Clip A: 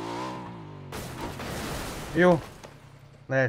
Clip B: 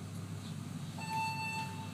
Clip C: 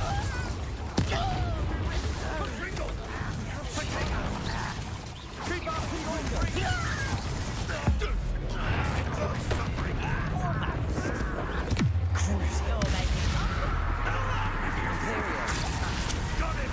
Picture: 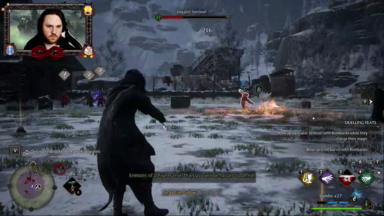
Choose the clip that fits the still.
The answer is C